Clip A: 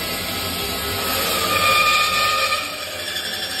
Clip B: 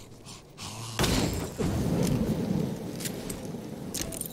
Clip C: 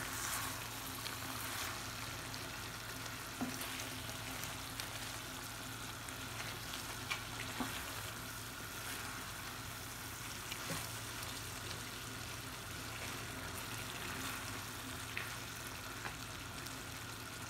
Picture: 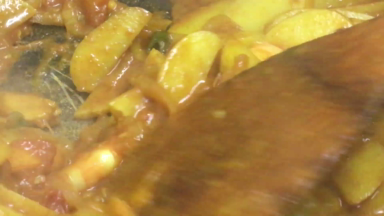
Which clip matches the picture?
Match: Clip C